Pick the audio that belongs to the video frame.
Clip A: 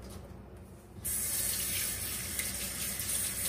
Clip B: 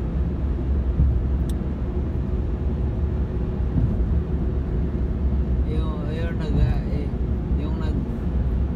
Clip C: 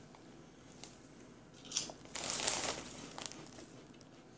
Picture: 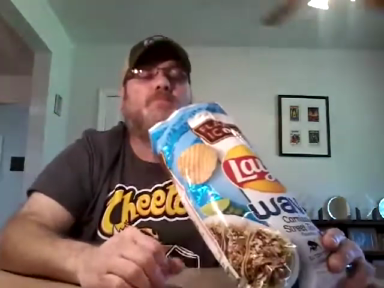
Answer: C